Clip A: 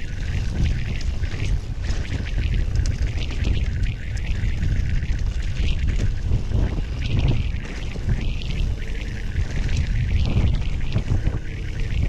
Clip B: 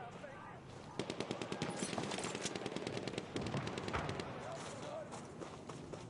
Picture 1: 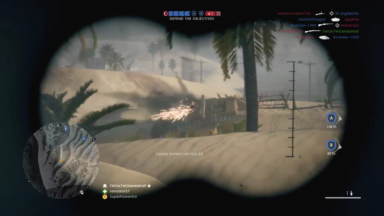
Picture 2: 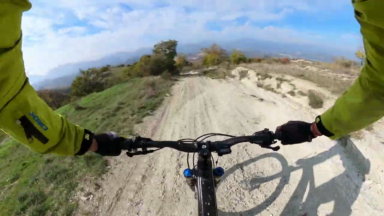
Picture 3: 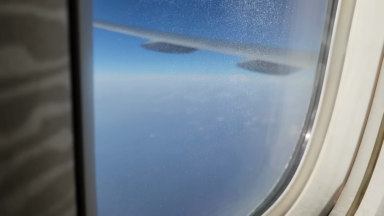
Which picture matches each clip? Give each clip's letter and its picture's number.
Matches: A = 2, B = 1